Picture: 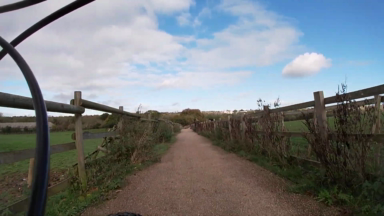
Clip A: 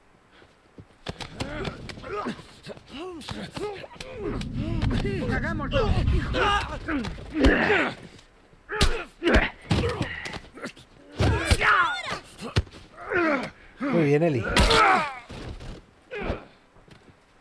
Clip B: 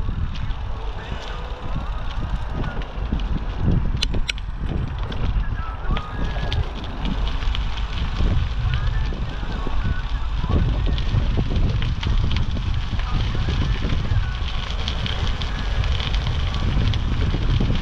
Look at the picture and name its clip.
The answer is B